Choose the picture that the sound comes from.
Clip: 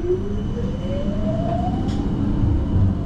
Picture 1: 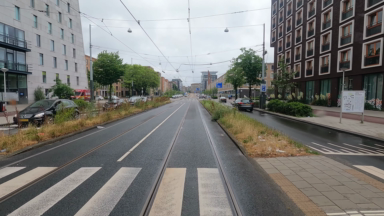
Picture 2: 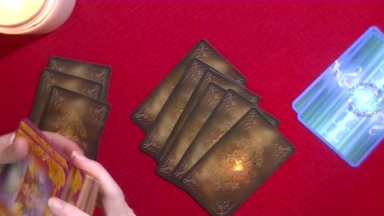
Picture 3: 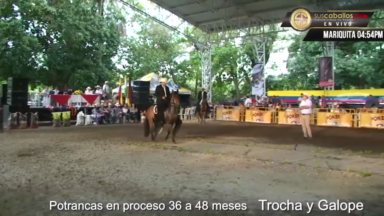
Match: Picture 1